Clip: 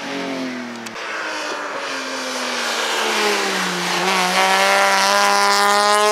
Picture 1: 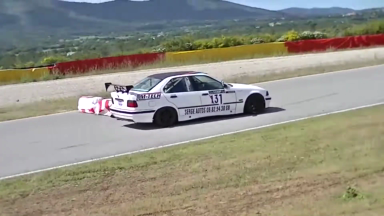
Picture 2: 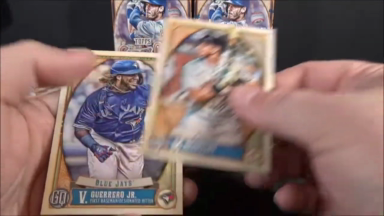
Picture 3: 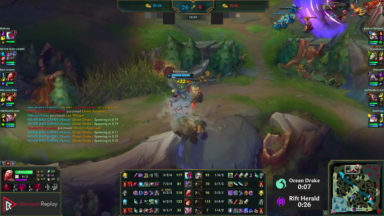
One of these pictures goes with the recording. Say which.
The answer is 1